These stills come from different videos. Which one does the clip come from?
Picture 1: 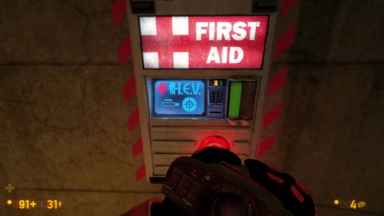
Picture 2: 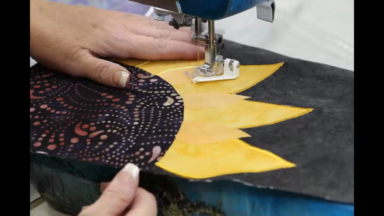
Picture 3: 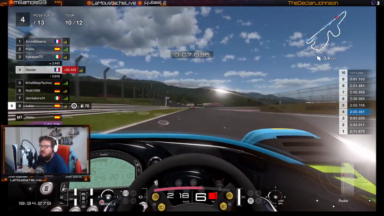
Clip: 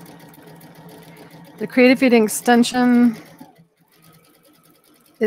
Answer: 2